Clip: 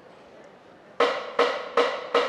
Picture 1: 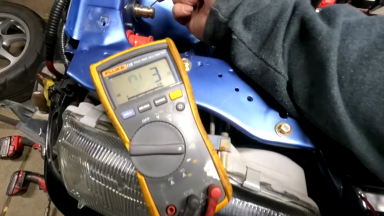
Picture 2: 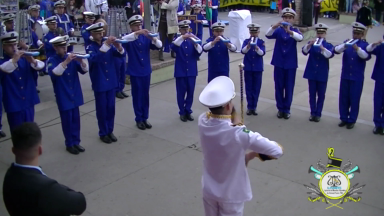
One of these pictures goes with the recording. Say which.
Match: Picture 2